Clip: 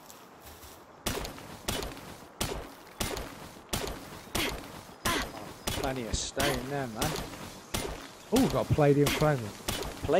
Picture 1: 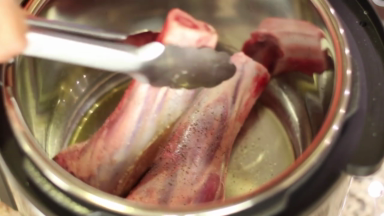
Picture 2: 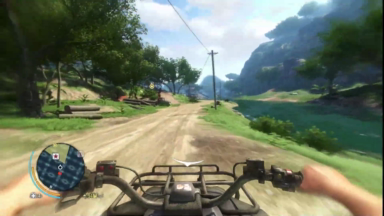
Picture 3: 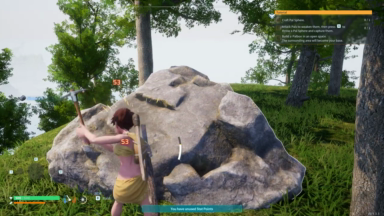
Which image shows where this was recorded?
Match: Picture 3